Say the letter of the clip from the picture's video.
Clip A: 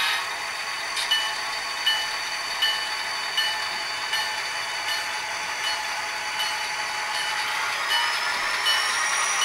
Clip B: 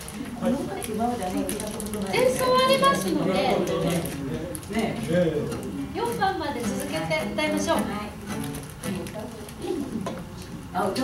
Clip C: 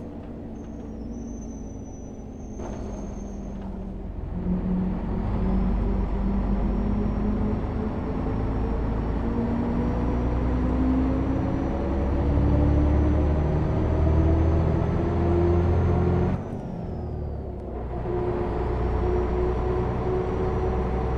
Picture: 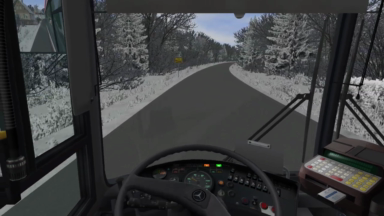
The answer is C